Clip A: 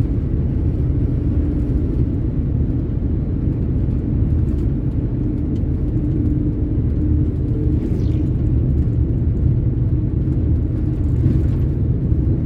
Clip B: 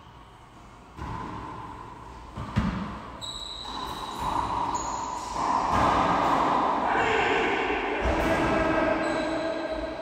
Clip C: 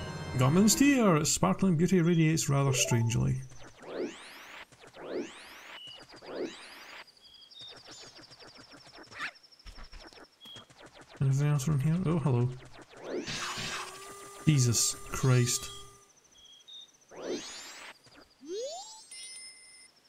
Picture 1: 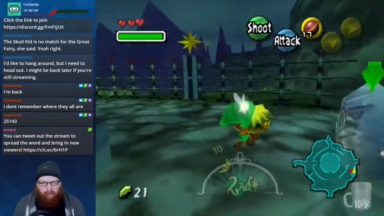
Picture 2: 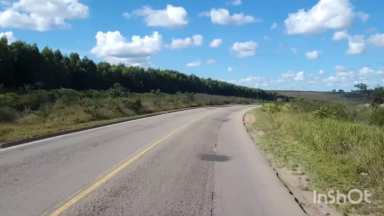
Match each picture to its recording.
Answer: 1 C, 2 A